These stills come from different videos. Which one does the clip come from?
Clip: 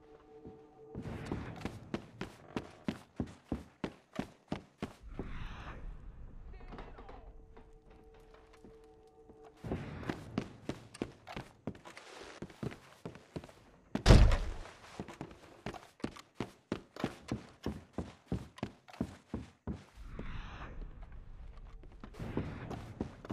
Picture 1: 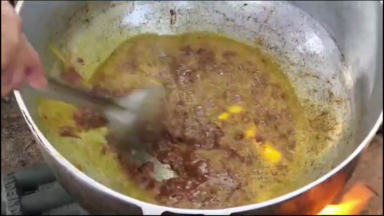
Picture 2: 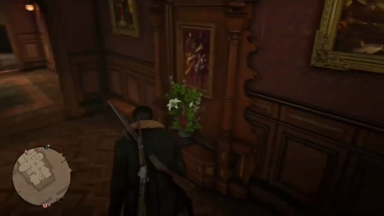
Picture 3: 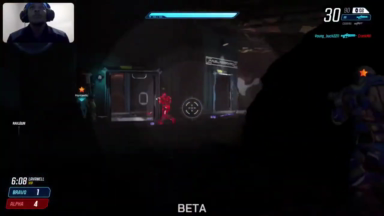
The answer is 2